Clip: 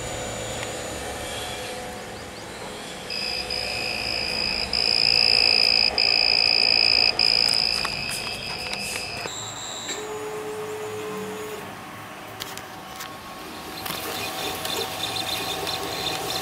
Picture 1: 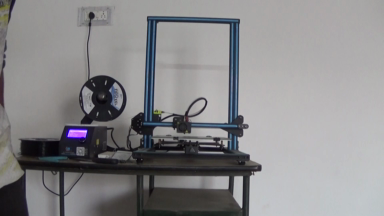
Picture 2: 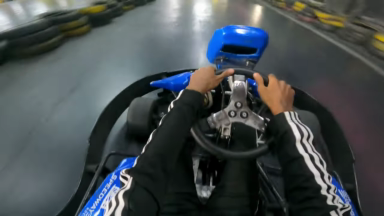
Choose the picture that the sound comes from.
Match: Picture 1